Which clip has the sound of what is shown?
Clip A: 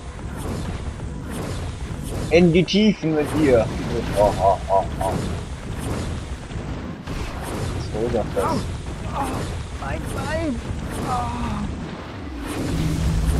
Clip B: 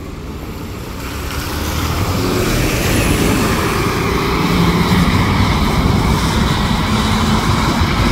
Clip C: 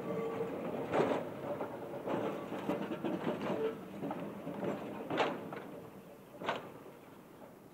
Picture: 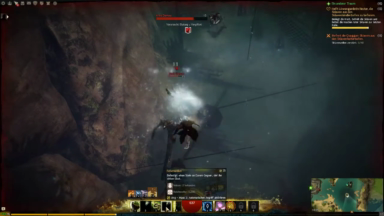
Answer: A